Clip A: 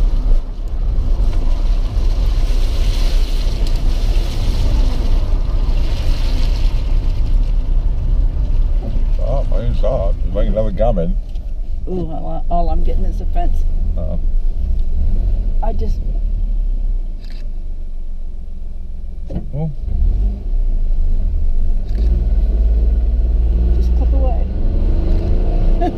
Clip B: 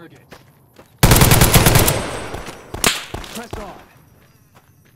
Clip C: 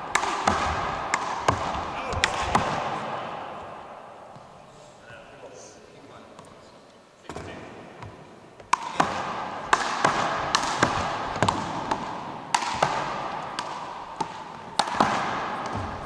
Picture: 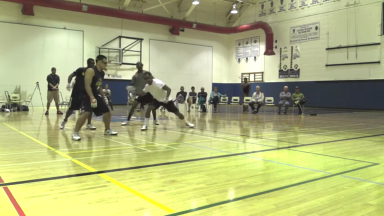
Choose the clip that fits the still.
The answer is C